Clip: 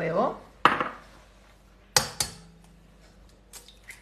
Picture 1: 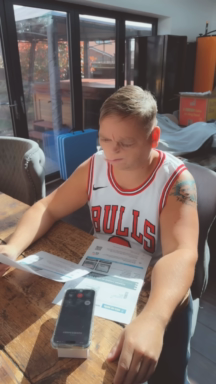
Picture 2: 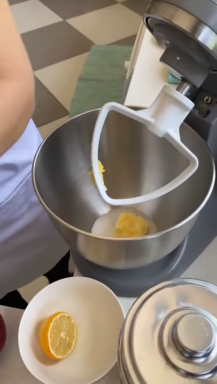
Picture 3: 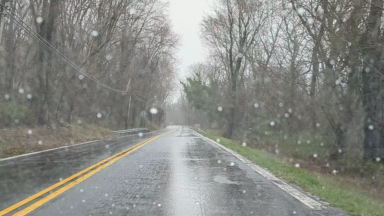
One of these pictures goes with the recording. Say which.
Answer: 2